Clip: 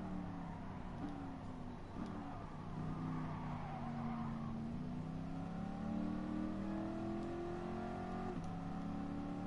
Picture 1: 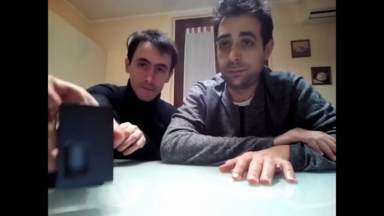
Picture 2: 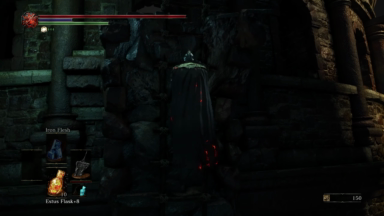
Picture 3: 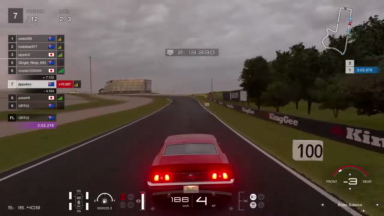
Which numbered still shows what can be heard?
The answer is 3